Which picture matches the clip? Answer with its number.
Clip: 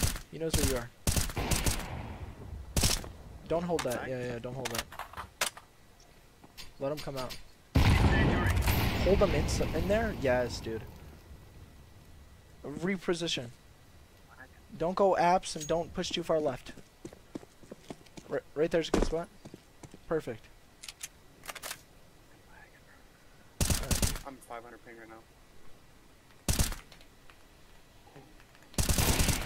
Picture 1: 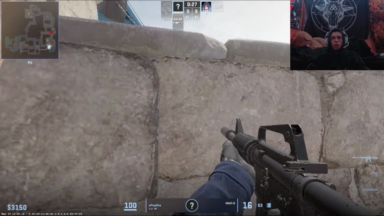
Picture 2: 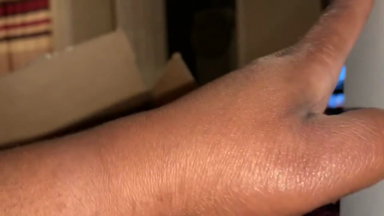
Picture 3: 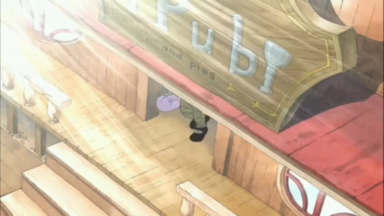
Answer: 1